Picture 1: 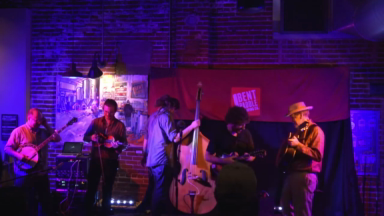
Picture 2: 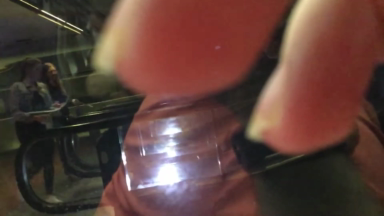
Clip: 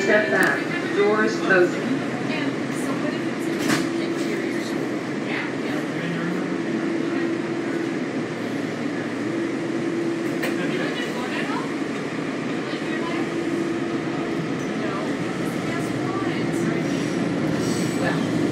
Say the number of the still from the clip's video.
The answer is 2